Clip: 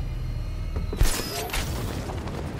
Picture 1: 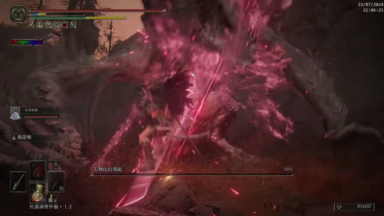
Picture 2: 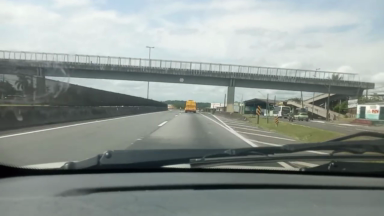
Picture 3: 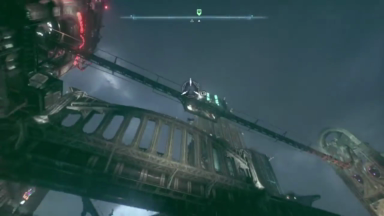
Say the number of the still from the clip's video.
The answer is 3